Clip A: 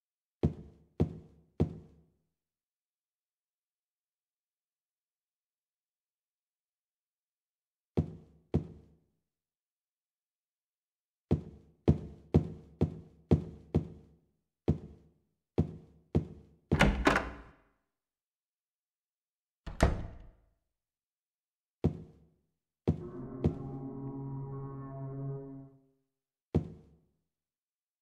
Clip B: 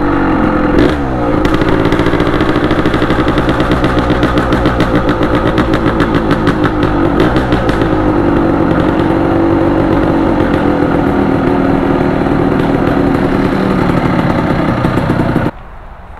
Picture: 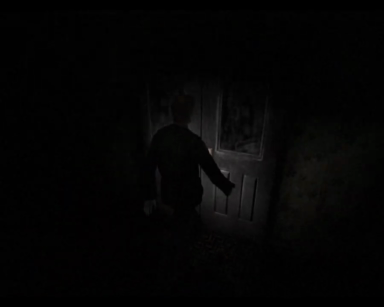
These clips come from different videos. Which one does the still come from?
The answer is A